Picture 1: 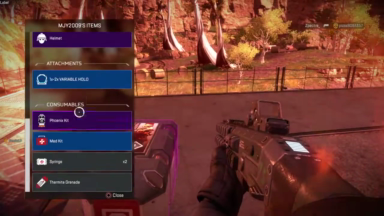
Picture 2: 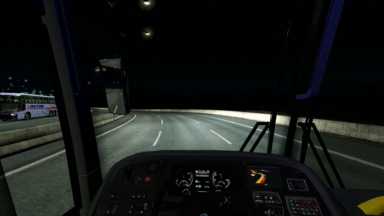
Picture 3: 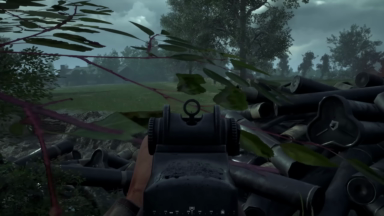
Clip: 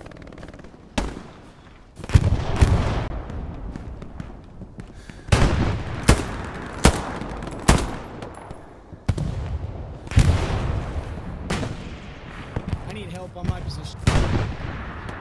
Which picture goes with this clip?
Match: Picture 3